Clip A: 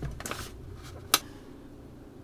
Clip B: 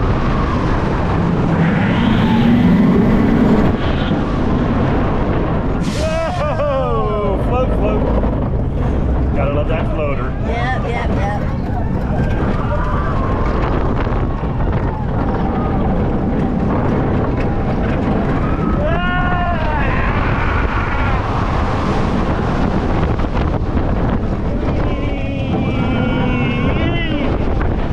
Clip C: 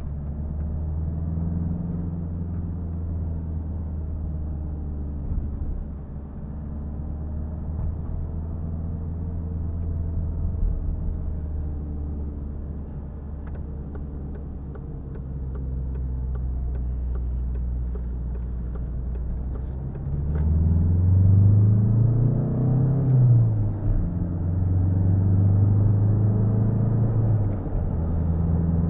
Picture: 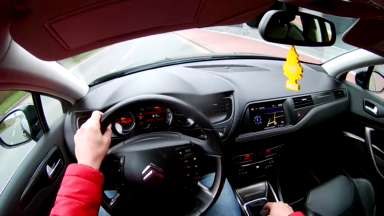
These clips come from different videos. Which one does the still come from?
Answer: C